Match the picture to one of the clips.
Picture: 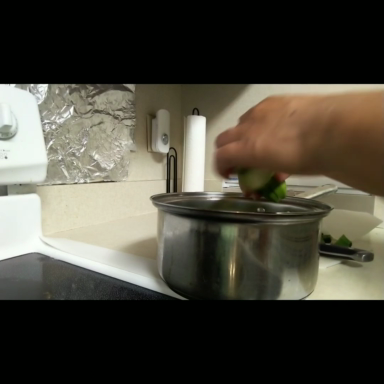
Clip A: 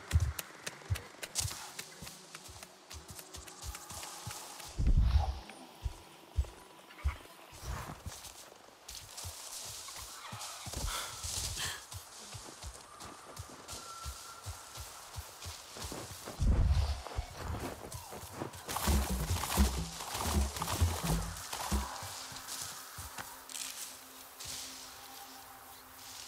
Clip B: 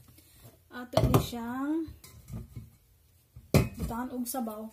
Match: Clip B